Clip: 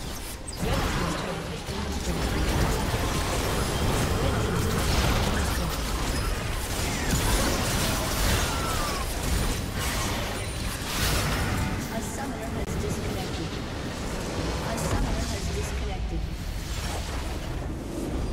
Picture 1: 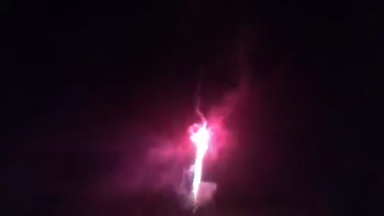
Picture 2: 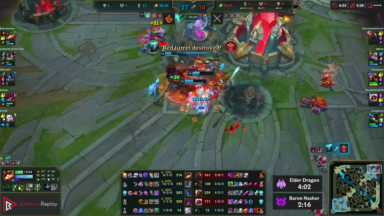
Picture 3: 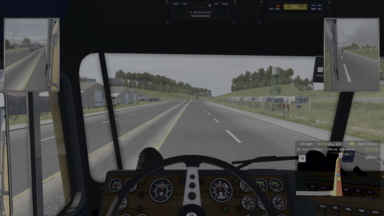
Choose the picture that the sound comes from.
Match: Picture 2